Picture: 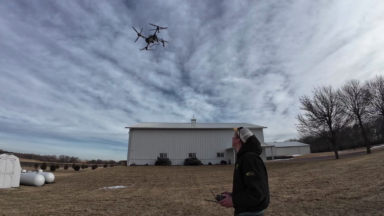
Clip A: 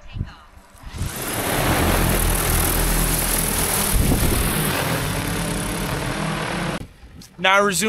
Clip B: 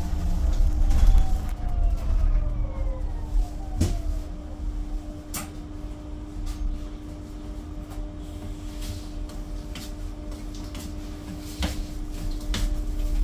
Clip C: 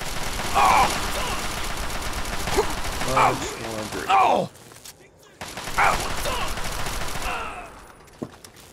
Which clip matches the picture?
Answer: A